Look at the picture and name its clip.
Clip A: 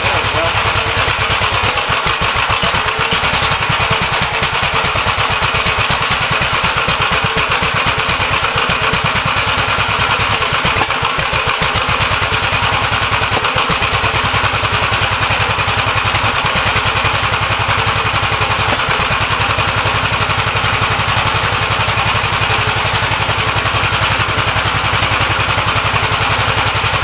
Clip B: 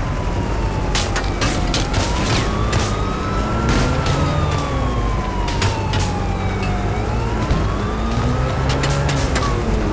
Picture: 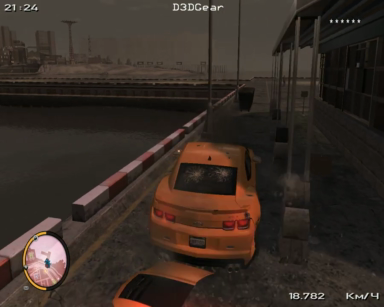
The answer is B